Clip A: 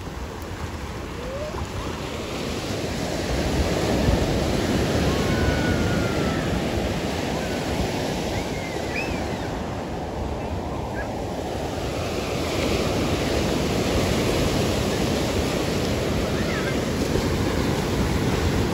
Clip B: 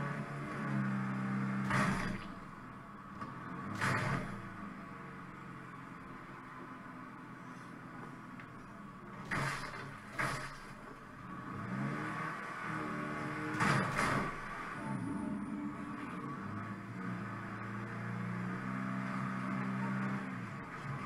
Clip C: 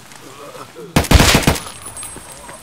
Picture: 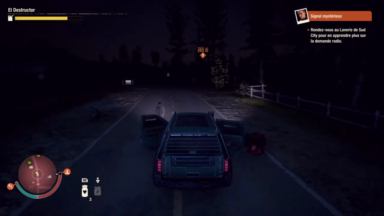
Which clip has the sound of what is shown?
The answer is B